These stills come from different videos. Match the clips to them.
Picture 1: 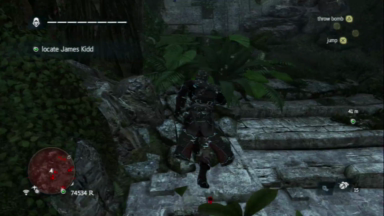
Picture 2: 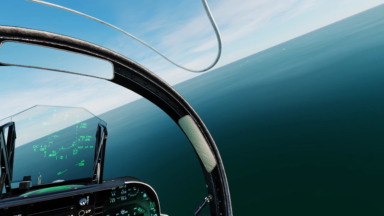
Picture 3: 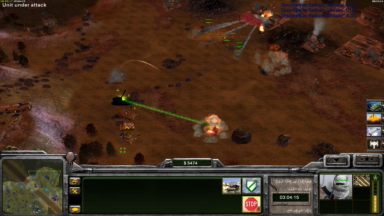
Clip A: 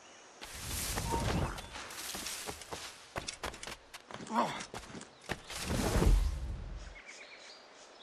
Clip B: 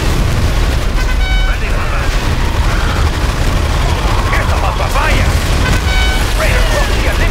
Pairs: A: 1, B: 3